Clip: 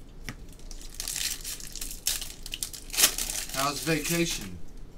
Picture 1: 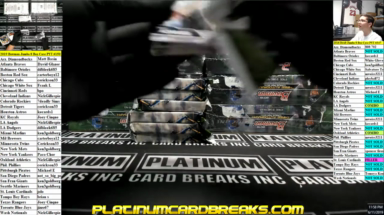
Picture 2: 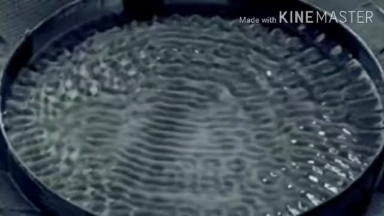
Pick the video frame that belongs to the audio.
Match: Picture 1